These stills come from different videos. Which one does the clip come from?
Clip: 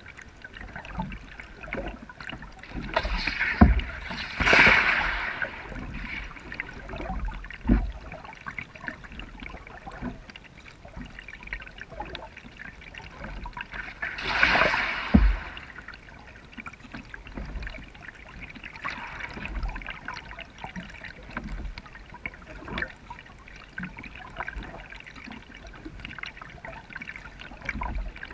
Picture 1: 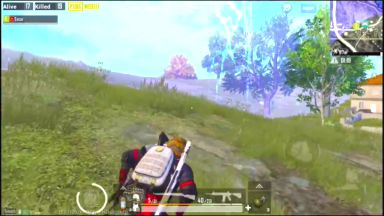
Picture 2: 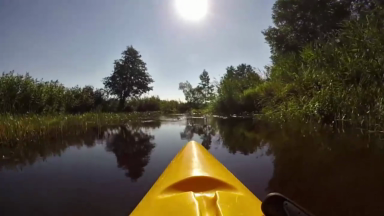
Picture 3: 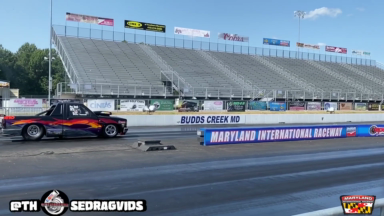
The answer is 2